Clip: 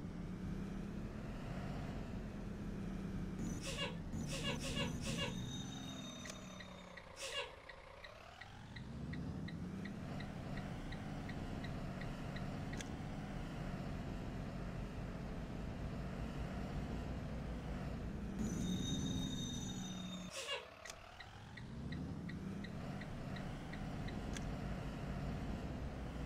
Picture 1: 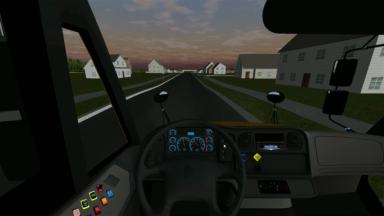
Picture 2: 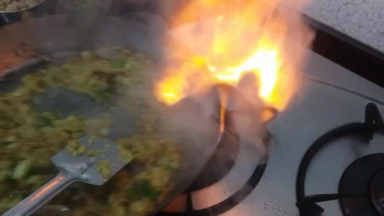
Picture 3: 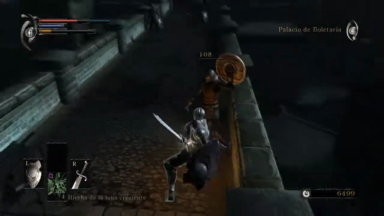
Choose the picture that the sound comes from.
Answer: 1